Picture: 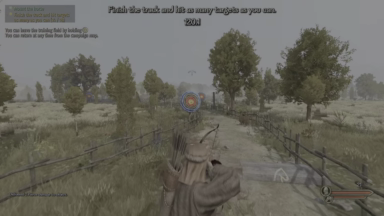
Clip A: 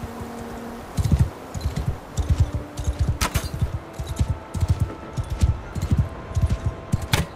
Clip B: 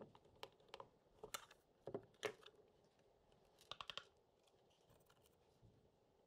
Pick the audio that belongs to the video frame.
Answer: A